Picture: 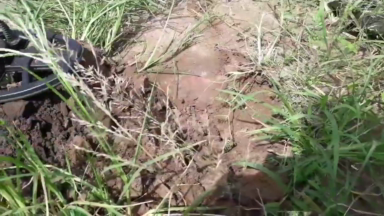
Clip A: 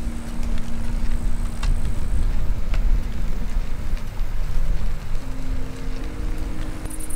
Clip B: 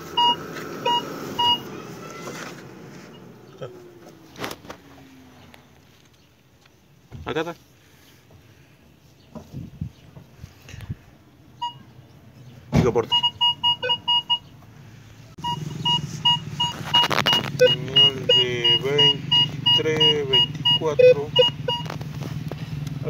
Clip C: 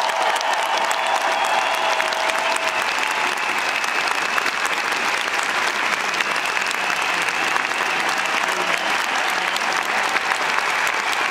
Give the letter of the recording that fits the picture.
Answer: B